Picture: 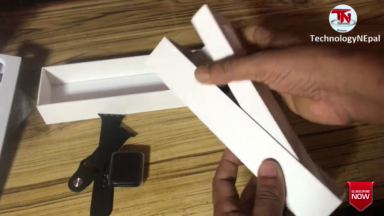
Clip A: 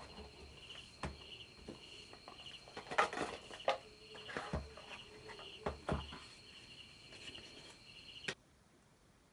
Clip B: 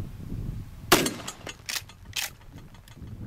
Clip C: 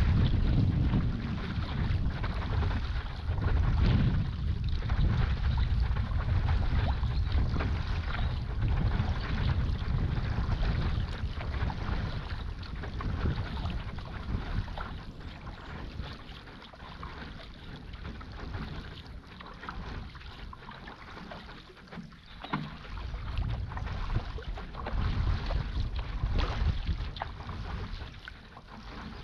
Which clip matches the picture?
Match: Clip A